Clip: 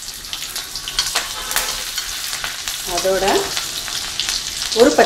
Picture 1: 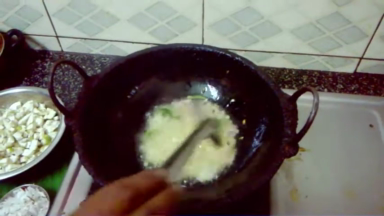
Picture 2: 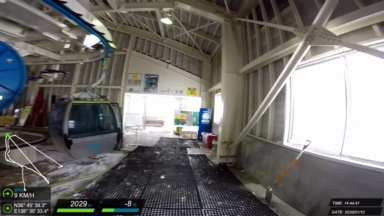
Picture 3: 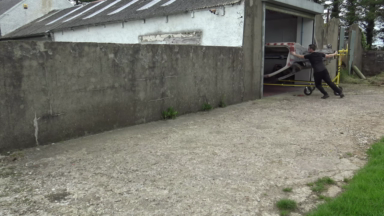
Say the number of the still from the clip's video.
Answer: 1